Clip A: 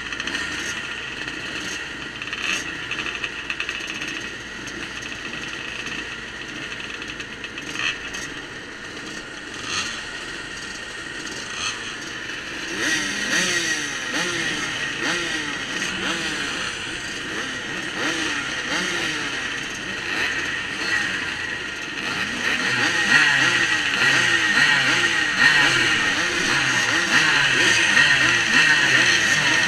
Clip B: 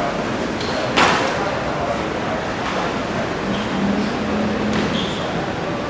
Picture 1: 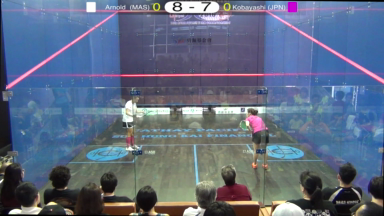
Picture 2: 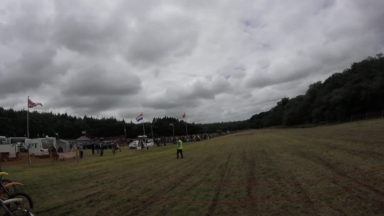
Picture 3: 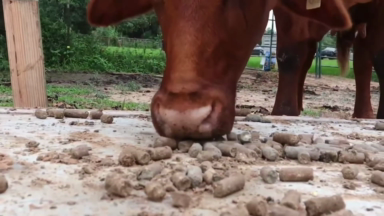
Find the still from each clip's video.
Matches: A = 2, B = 1